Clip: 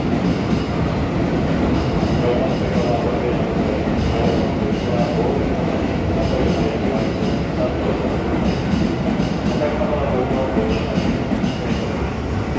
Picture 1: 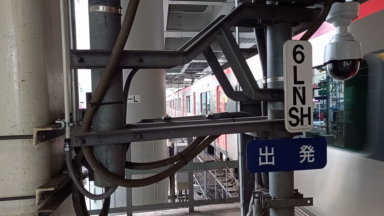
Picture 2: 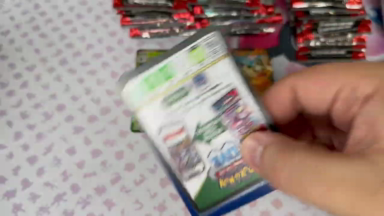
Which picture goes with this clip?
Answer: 1